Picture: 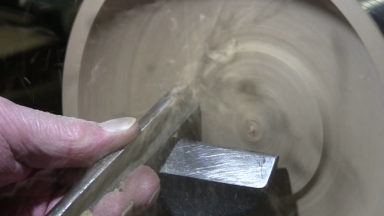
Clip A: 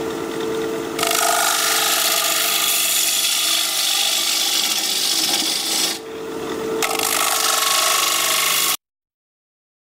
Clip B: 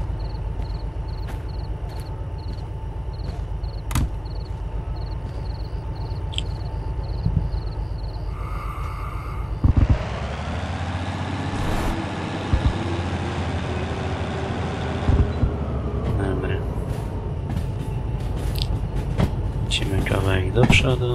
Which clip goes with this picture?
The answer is A